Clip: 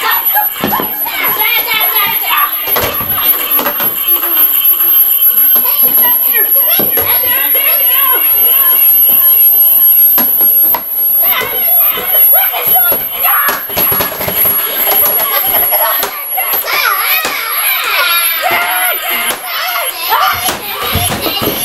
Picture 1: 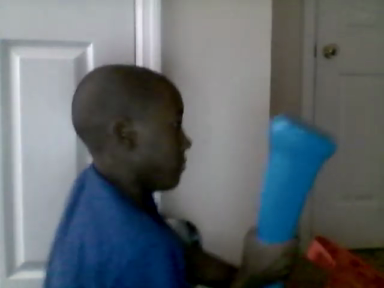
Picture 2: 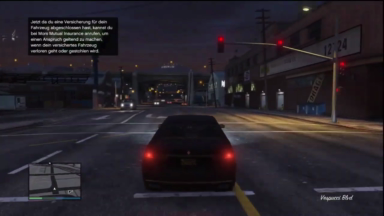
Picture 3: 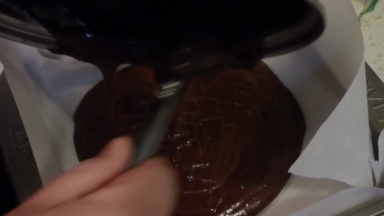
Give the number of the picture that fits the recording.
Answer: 1